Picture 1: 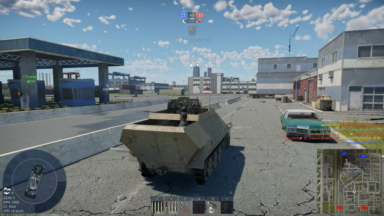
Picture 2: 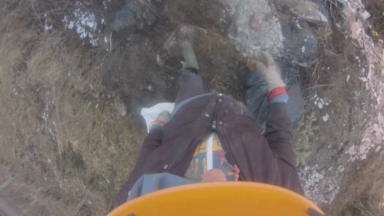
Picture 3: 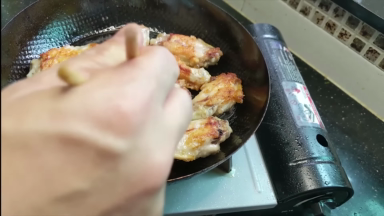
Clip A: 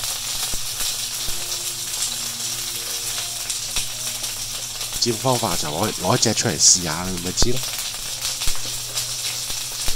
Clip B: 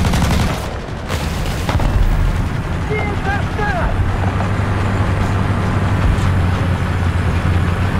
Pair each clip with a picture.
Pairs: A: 3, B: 1